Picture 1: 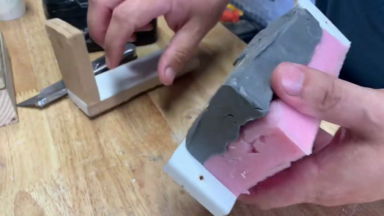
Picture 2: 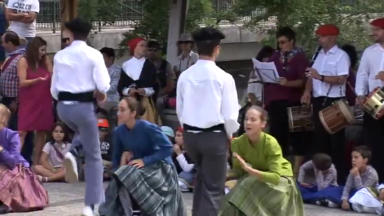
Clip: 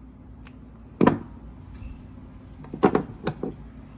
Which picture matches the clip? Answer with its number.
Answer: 1